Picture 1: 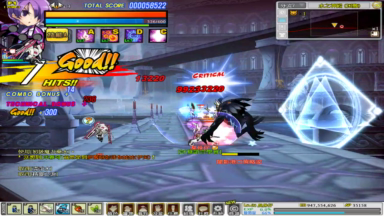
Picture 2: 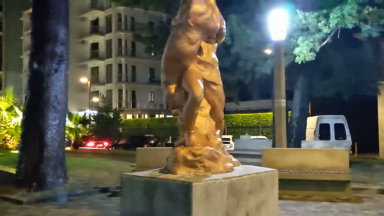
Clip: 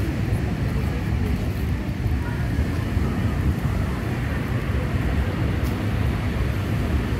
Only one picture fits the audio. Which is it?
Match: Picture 2